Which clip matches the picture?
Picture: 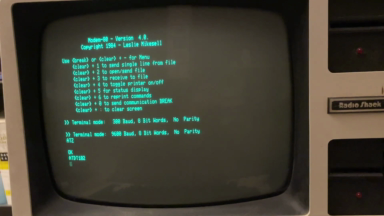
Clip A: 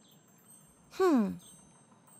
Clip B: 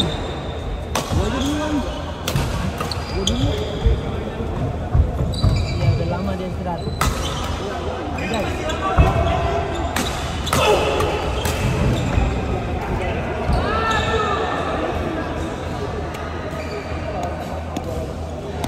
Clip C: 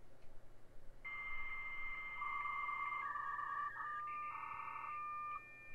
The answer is C